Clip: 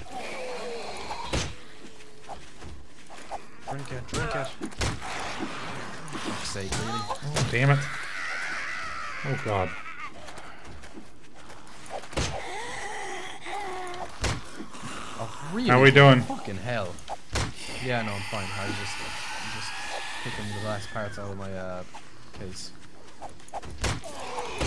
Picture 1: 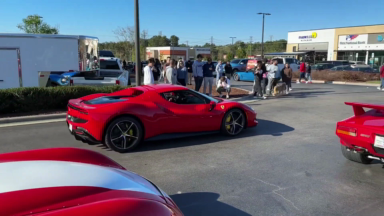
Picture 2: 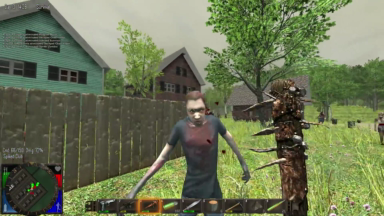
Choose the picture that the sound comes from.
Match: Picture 2